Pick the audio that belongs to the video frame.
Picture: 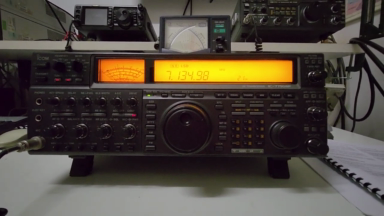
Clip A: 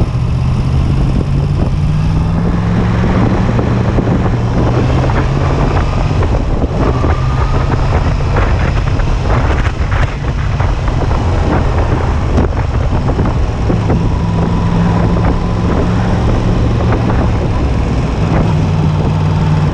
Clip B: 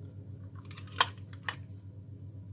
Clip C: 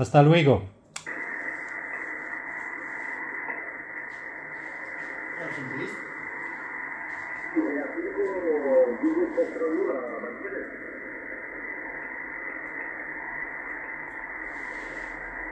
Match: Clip C